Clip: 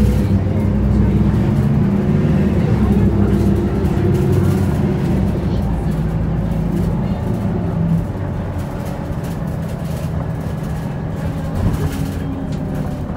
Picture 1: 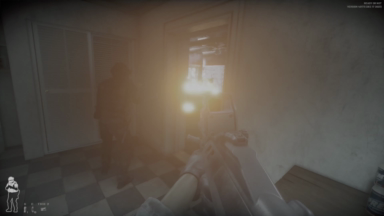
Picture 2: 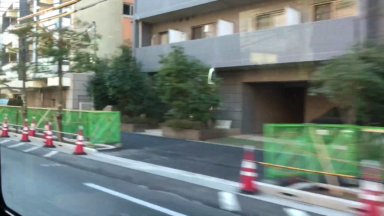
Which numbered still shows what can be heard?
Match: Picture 2